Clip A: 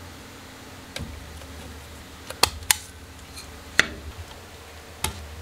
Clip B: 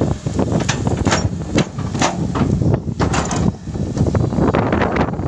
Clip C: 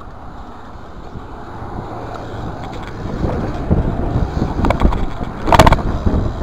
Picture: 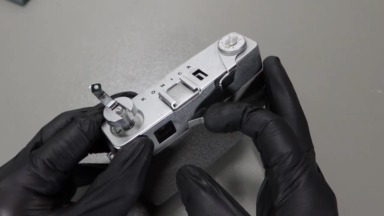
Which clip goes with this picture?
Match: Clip A